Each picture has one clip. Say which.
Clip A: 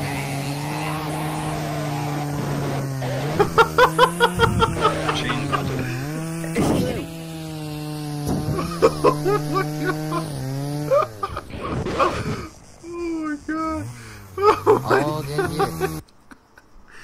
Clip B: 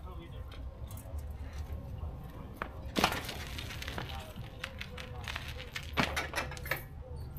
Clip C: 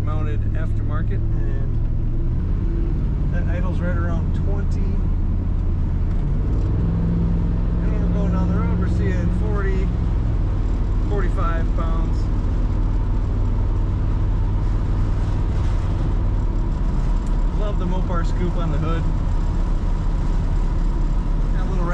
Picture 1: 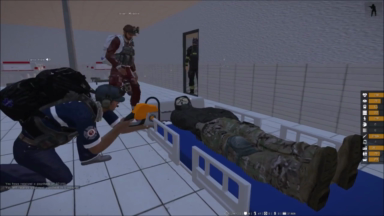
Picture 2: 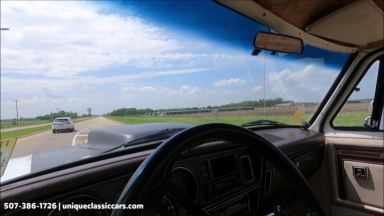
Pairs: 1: A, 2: C